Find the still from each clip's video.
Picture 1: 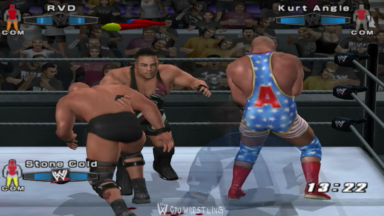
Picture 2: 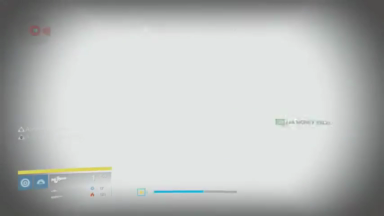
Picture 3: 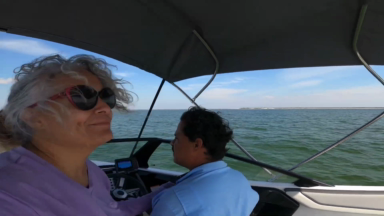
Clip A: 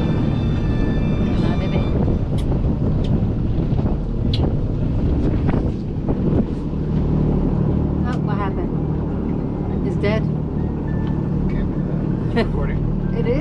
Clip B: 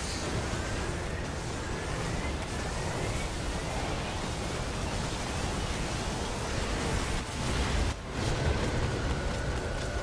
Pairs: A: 3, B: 2